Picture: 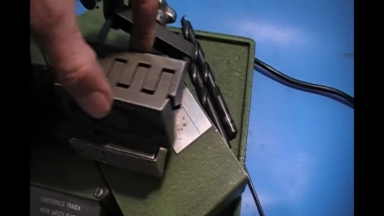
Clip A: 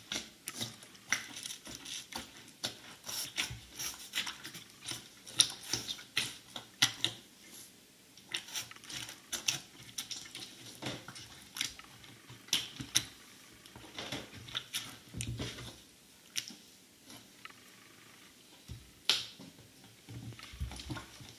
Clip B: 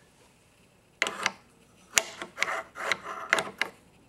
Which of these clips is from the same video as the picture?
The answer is B